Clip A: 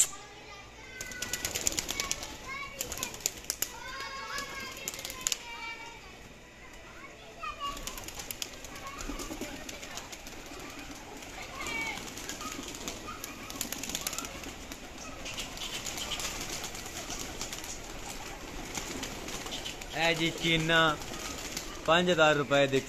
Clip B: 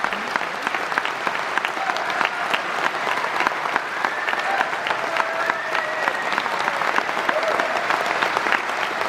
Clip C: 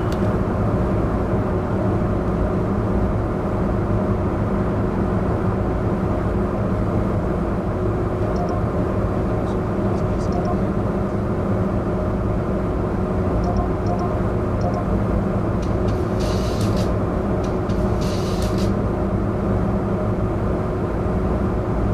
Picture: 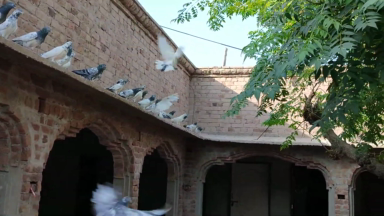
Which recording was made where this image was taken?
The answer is A